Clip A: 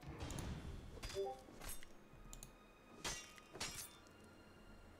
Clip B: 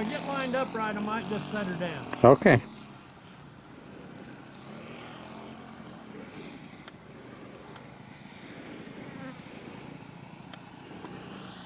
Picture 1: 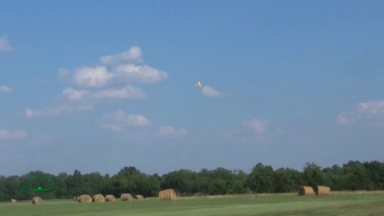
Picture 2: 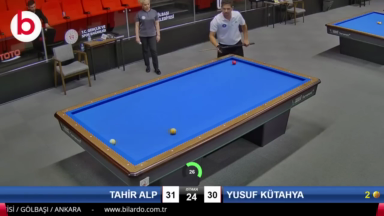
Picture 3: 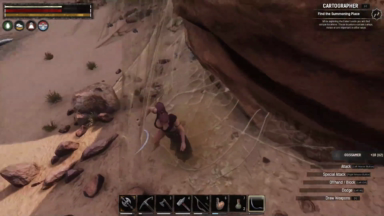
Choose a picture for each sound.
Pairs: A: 3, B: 1